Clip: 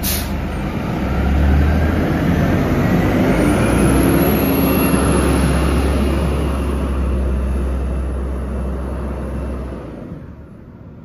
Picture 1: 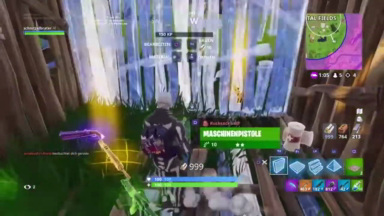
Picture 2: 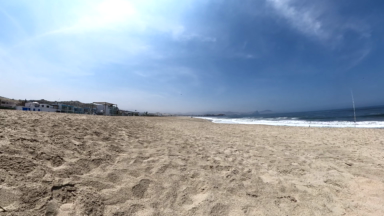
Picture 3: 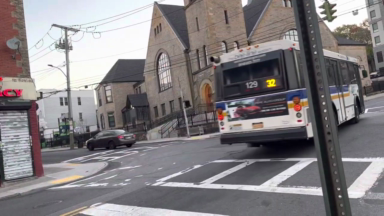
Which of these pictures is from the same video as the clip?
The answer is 3